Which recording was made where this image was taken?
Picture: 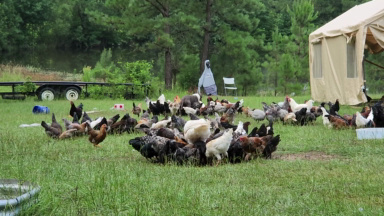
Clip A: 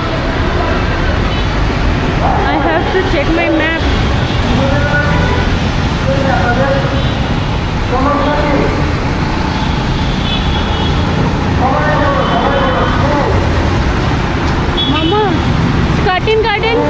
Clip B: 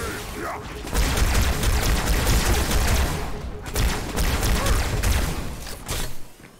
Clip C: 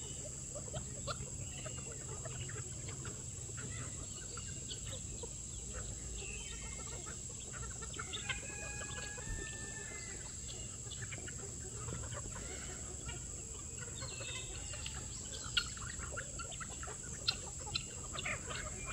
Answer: C